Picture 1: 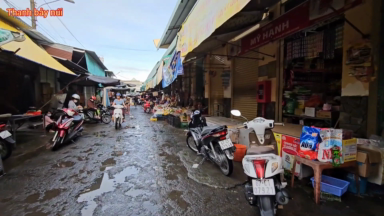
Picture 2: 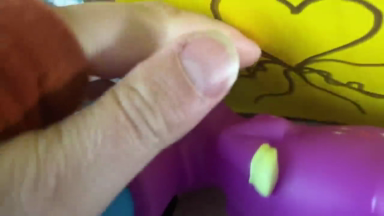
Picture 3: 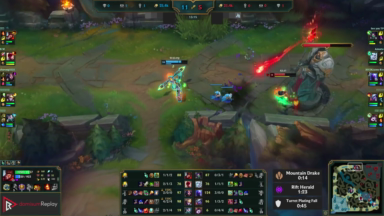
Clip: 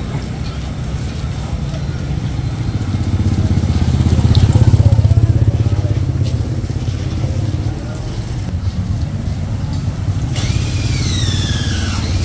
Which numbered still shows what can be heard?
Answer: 1